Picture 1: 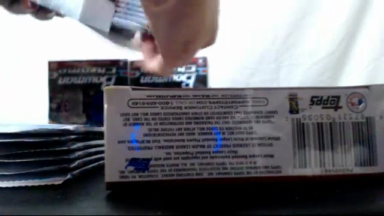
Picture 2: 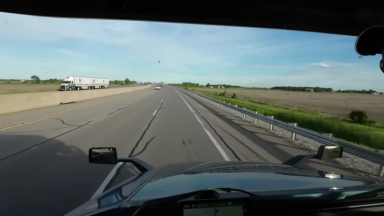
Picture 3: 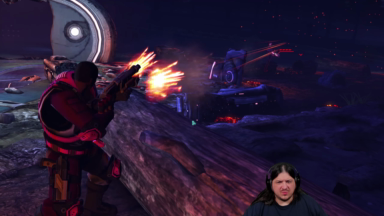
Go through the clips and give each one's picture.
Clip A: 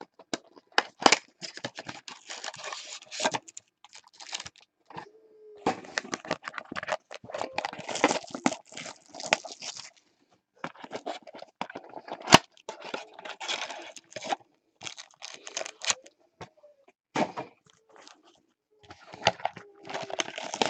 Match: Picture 1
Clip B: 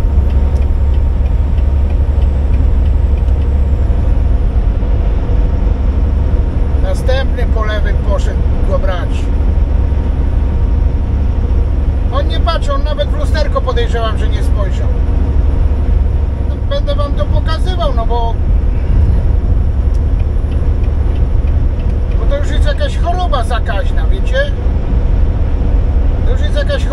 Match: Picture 2